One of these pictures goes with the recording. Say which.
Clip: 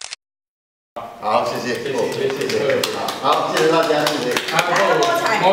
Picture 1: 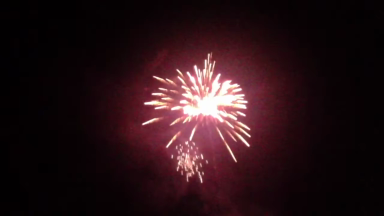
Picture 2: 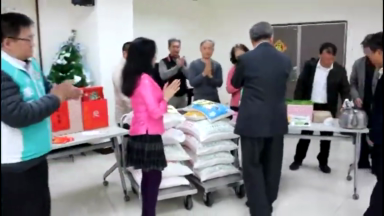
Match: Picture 2